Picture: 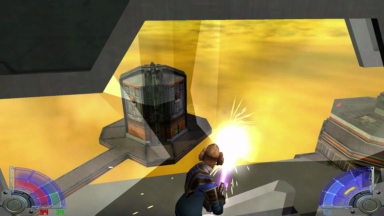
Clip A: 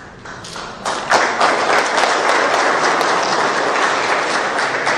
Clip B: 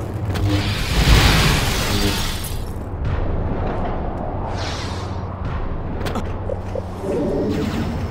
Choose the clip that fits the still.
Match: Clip B